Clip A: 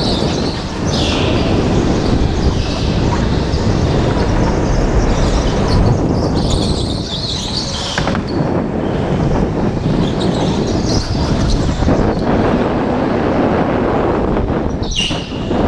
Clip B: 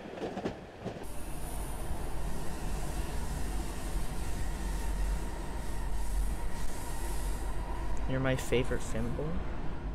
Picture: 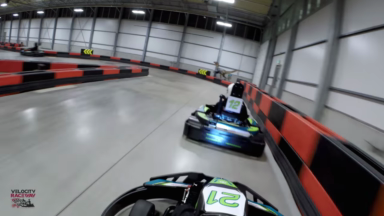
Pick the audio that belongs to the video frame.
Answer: A